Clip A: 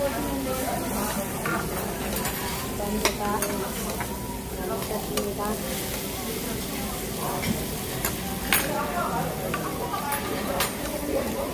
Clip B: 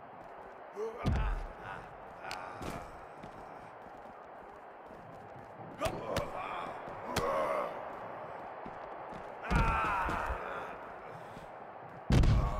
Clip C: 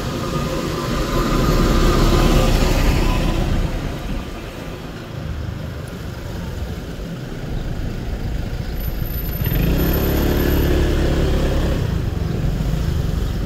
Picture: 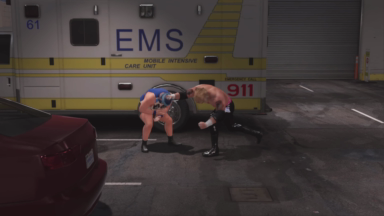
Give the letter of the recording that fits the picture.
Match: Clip B